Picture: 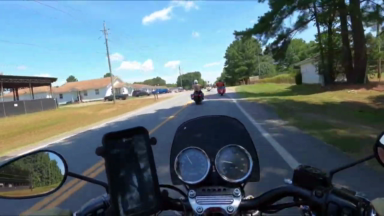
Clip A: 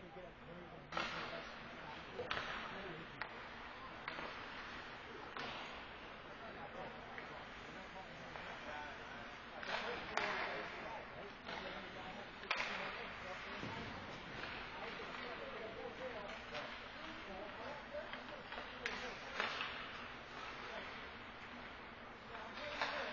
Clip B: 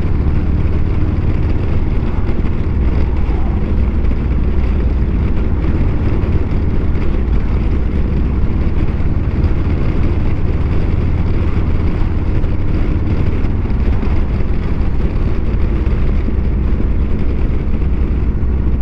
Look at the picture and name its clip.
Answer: B